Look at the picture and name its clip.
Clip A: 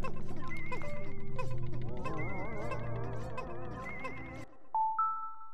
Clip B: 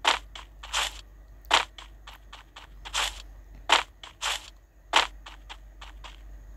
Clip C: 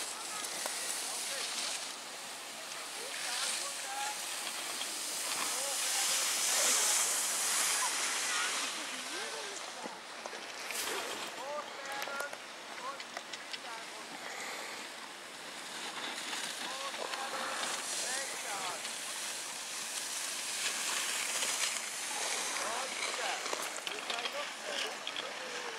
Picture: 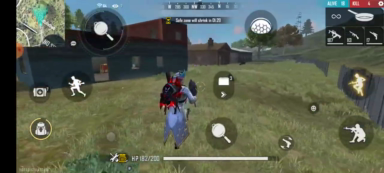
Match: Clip B